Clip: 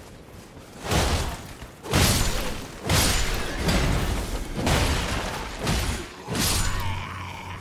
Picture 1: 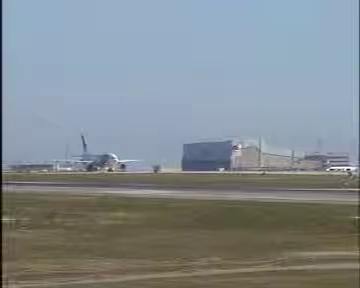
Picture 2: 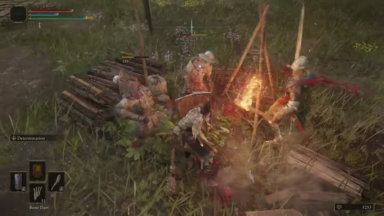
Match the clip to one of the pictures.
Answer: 2